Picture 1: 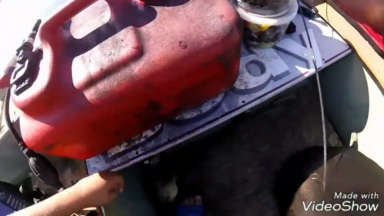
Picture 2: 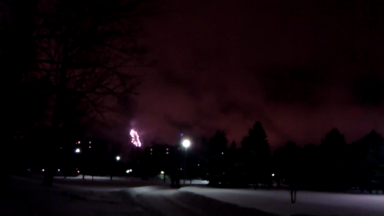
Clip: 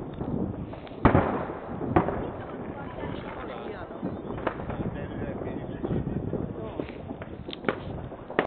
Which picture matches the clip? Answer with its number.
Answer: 2